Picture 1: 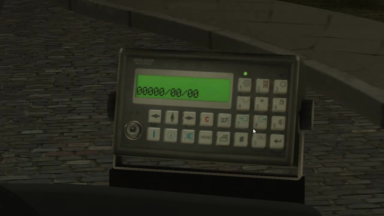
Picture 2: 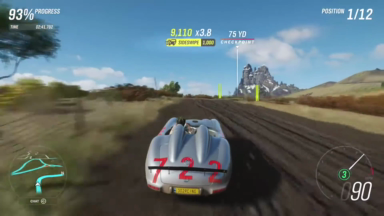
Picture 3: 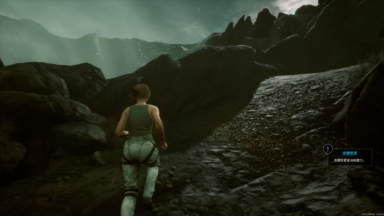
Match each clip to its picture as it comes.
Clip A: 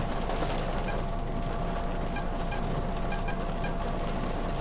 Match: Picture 1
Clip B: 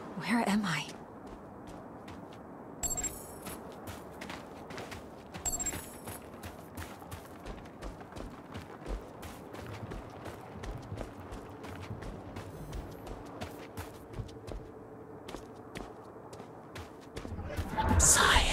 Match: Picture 3